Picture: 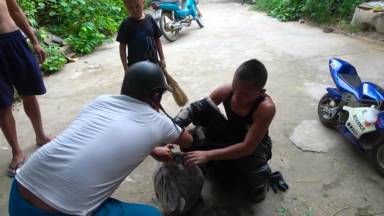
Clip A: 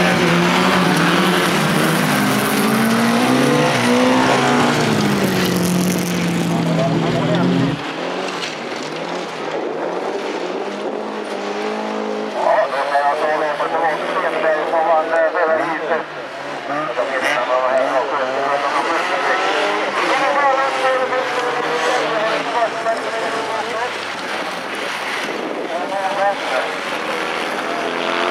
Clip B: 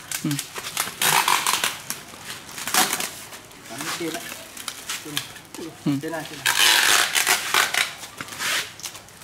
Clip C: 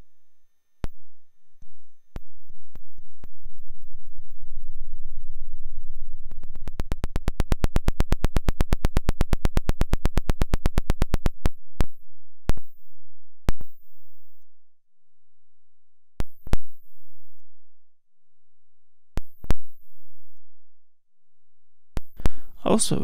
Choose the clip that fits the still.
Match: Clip B